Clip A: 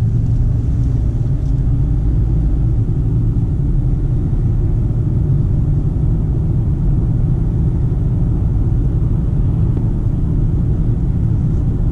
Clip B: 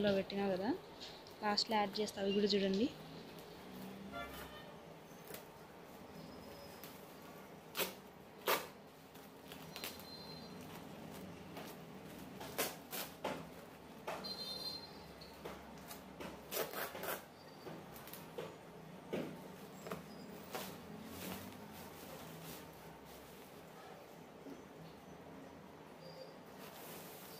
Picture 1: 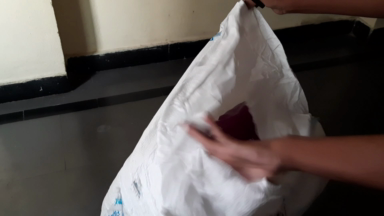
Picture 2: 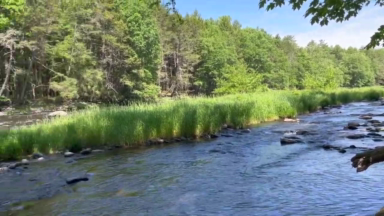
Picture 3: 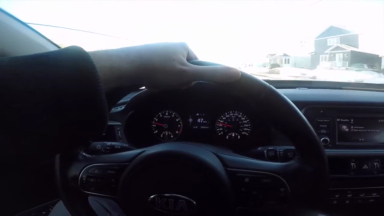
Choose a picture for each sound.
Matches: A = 3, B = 1